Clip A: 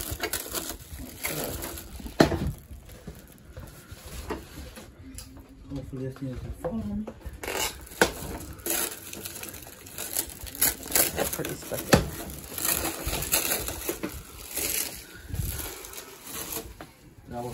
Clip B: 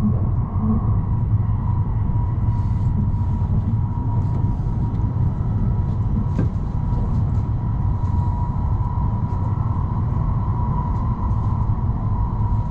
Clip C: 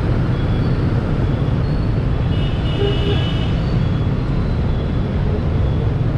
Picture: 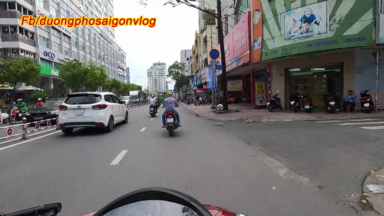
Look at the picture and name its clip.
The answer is C